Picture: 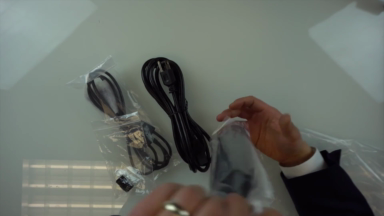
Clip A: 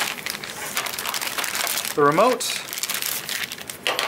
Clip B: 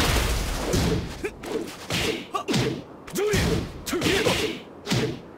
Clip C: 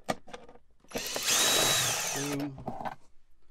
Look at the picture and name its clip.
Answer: A